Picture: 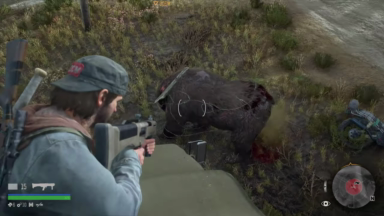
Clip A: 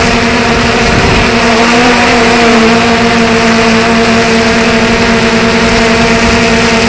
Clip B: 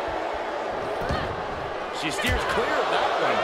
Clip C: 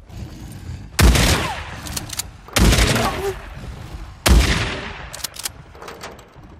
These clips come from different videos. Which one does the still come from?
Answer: C